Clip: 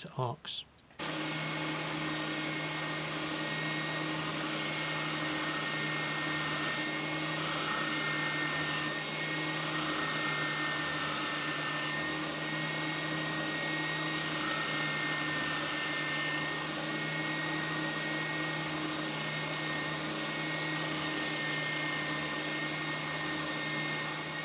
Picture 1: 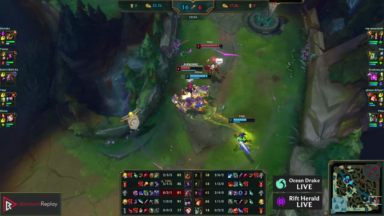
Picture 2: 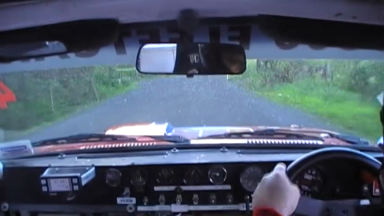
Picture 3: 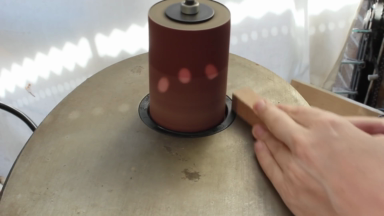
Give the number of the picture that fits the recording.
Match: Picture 3